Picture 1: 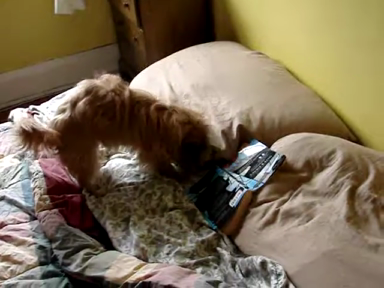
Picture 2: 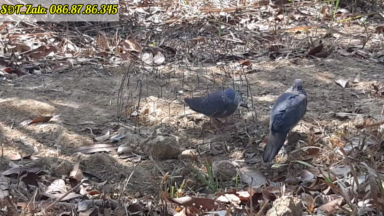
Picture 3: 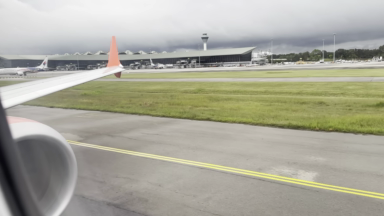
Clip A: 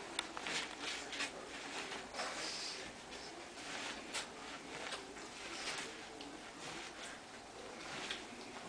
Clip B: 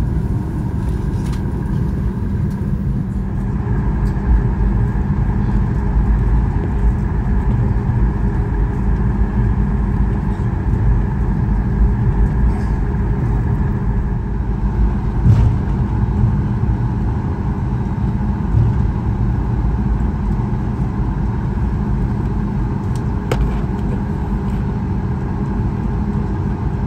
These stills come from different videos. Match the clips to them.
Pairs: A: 1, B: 3